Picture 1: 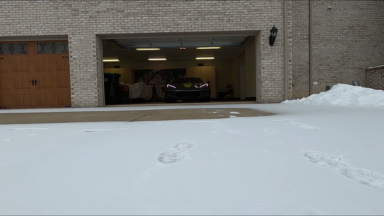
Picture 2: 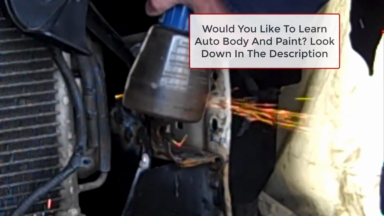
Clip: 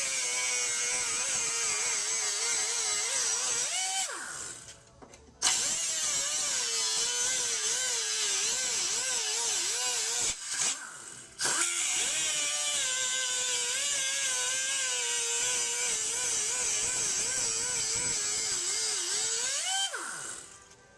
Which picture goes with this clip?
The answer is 2